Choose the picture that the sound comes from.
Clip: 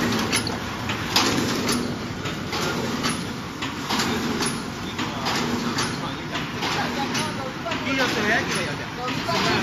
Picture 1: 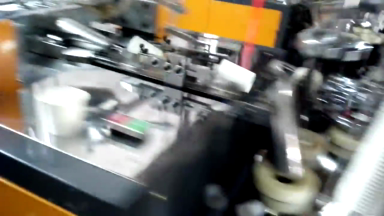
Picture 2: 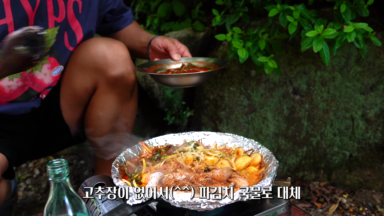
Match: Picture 1